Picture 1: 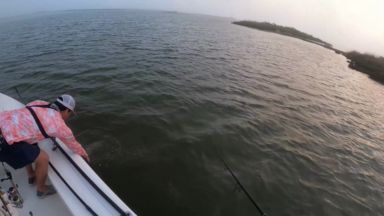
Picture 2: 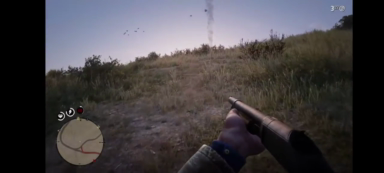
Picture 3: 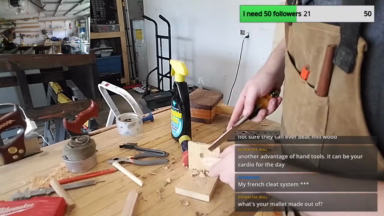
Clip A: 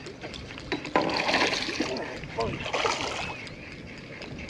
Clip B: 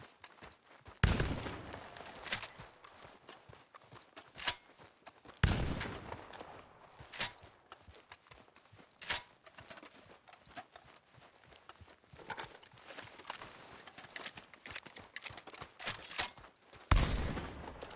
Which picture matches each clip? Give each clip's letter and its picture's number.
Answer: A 1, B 2